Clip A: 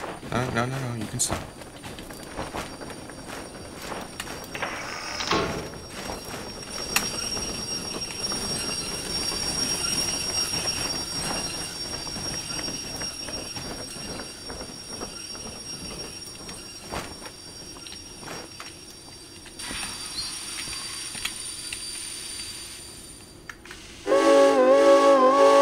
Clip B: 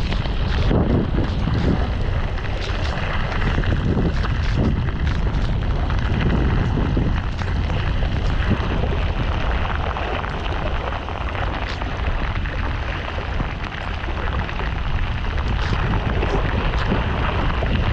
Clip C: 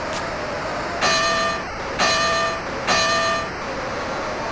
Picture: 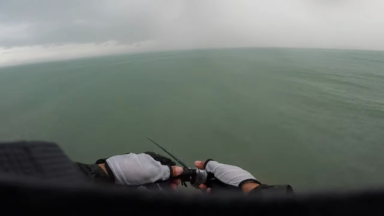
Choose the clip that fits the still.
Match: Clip B